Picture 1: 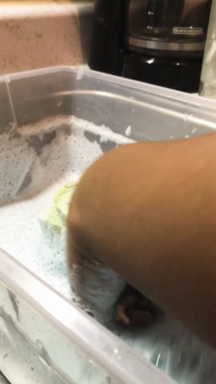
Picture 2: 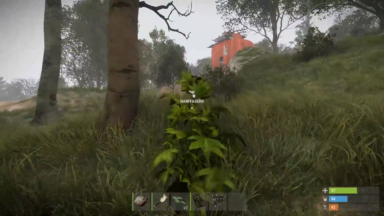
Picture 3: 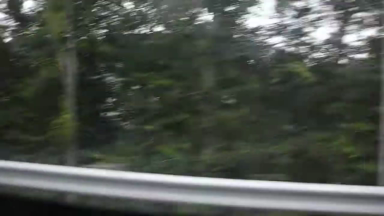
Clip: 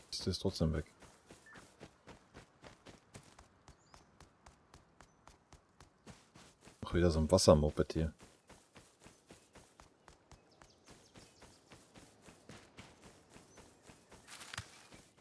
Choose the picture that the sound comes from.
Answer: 2